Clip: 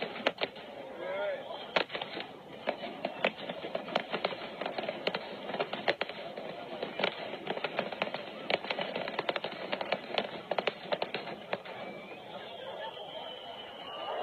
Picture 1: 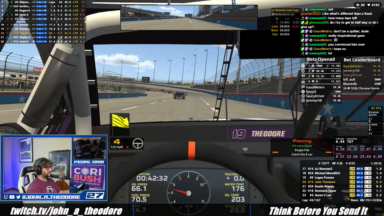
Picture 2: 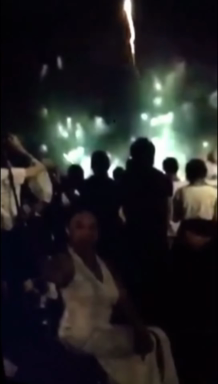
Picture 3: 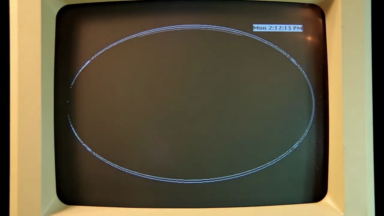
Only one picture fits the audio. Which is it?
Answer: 2